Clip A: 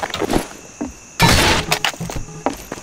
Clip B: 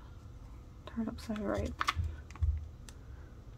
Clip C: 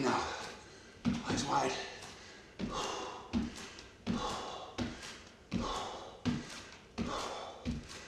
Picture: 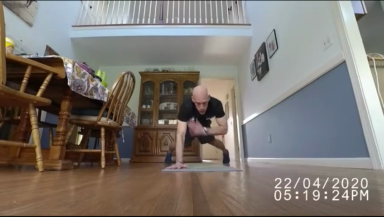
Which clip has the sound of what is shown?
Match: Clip C